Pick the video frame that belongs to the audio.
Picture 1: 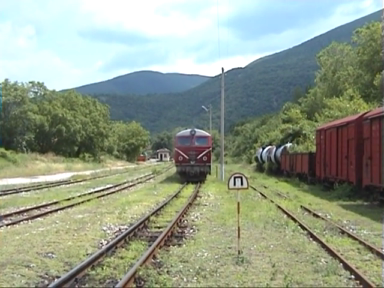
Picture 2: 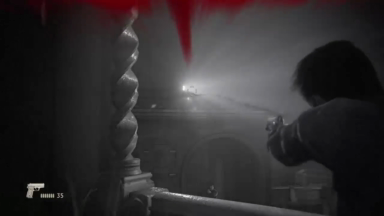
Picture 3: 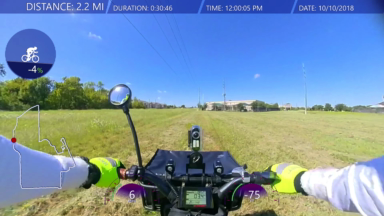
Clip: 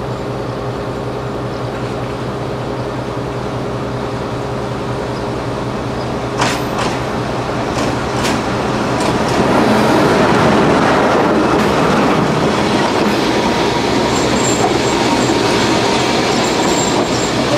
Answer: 1